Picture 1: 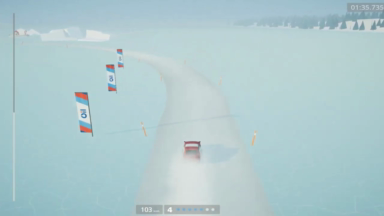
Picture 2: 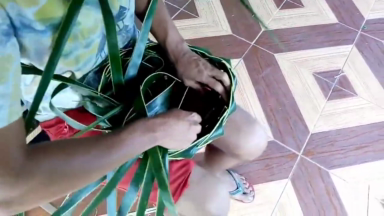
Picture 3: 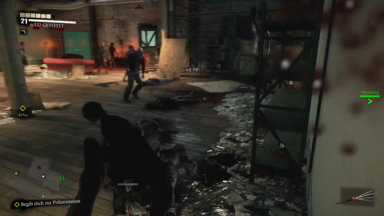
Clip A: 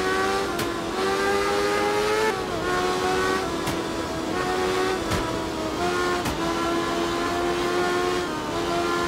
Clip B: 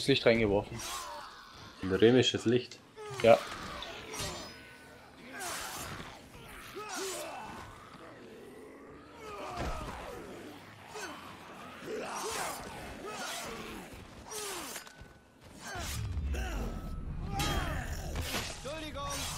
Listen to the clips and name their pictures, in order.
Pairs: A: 1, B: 3